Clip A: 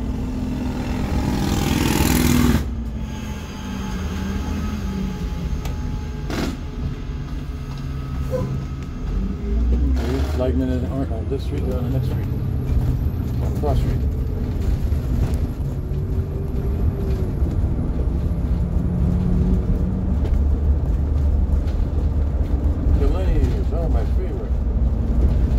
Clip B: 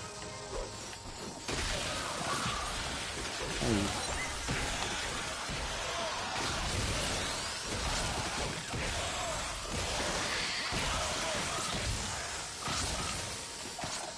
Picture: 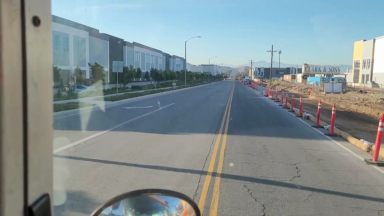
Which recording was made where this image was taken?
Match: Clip A